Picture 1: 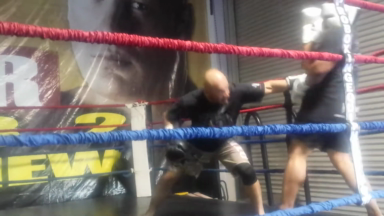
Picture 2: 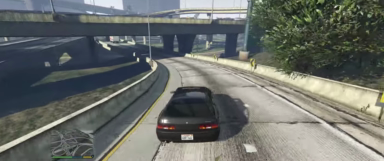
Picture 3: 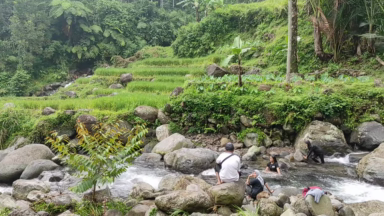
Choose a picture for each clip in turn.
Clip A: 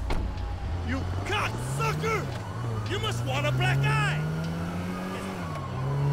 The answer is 2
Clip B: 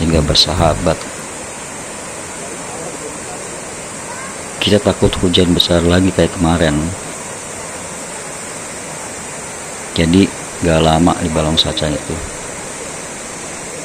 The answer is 3